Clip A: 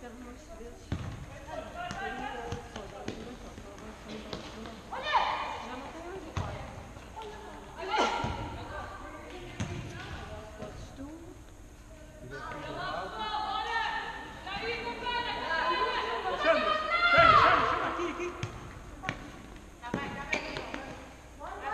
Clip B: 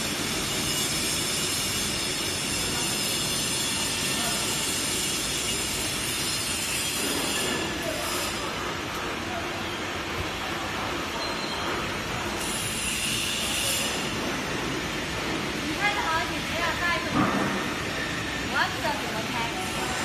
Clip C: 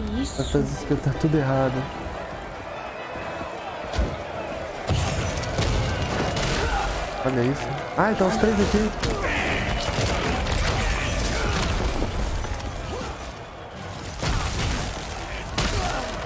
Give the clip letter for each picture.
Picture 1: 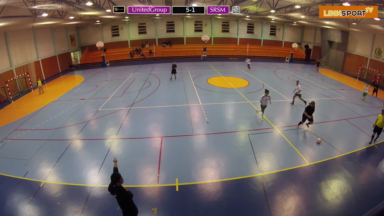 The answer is A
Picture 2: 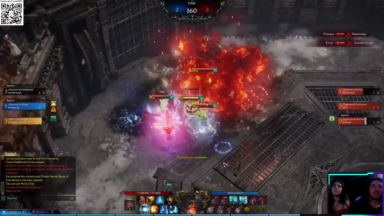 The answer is C